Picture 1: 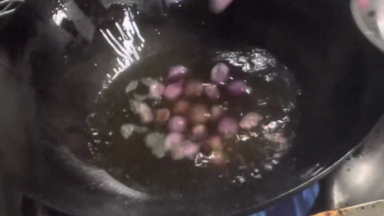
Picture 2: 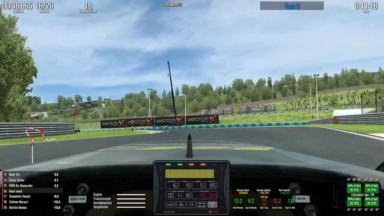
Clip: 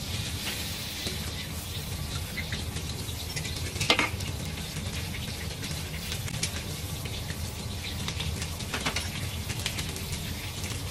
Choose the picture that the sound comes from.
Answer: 1